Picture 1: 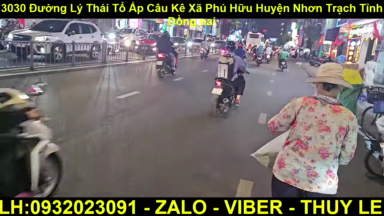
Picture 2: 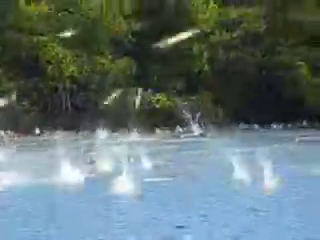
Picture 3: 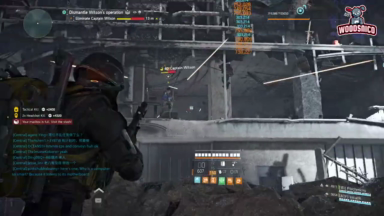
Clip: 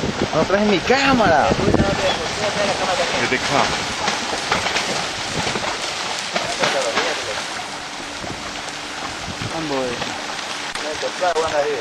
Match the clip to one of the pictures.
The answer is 2